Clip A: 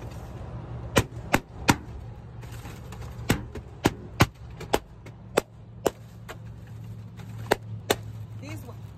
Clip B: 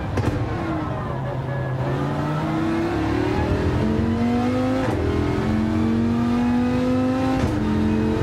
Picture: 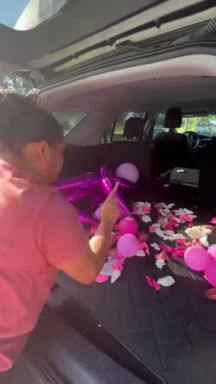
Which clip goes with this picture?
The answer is A